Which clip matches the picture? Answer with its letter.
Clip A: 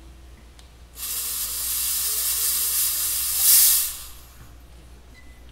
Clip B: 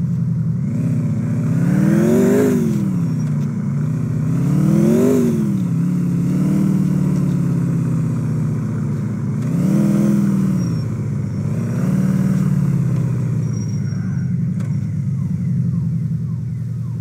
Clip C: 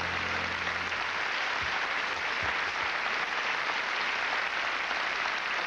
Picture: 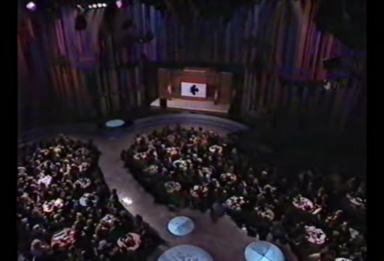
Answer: C